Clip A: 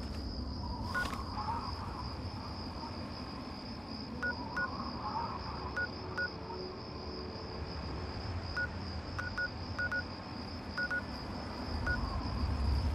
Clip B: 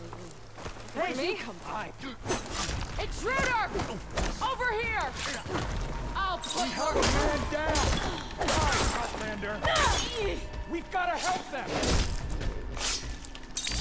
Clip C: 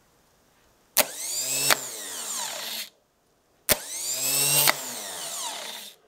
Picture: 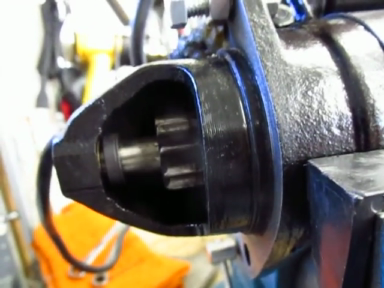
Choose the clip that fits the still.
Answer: C